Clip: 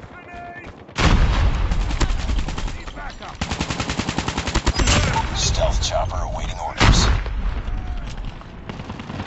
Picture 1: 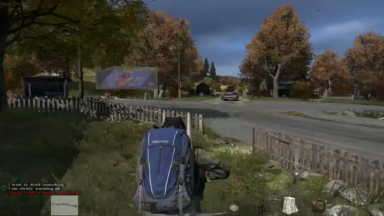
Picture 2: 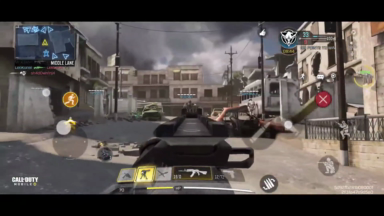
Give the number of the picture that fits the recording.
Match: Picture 2